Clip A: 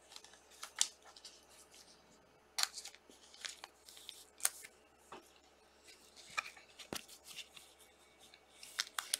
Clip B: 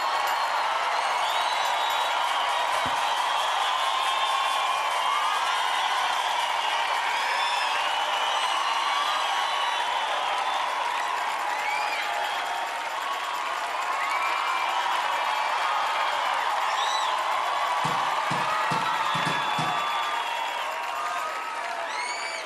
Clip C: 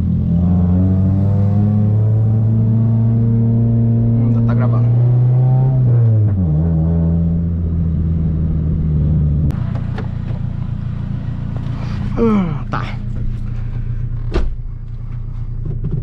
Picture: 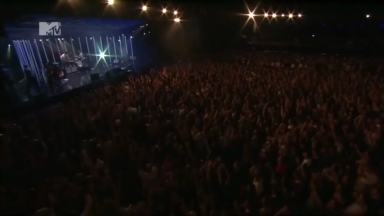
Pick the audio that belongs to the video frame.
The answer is B